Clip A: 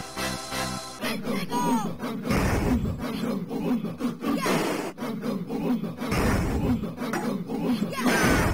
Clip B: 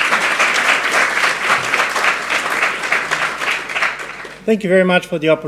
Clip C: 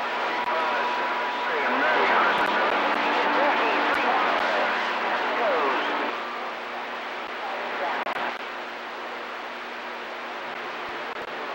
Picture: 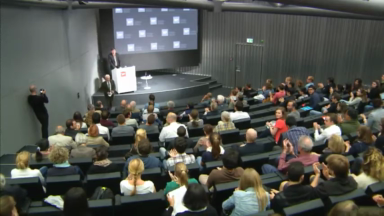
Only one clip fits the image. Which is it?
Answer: B